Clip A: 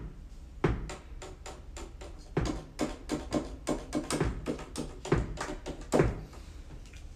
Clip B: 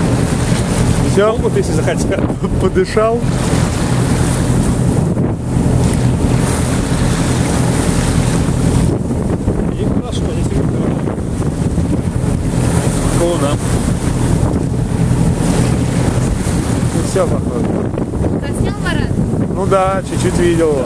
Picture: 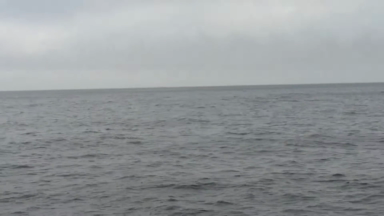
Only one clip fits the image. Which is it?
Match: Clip B